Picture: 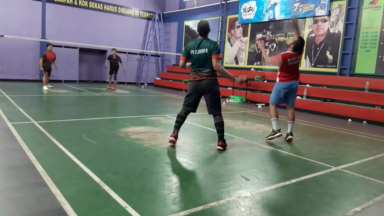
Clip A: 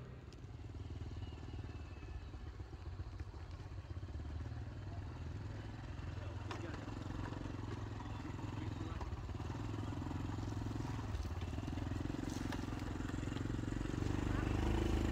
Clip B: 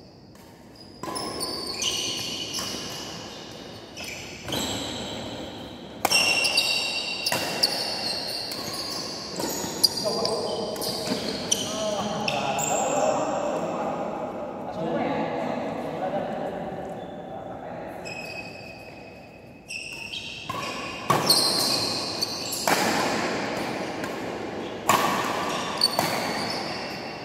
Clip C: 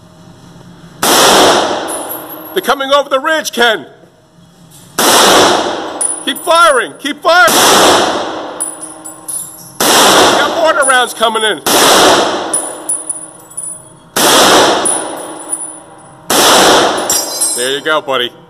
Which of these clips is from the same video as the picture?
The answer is B